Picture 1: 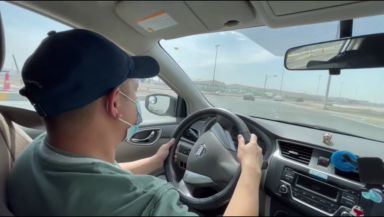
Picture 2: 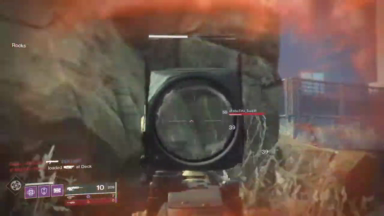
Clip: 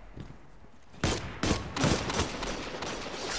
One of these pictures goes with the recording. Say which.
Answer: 2